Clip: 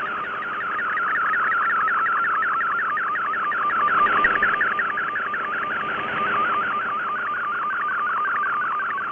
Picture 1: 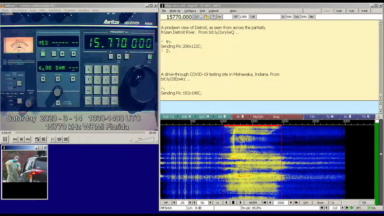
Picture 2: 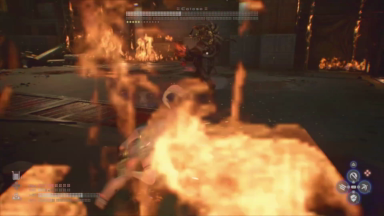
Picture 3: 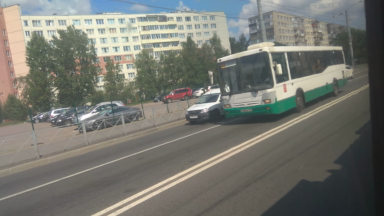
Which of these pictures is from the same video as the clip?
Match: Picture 1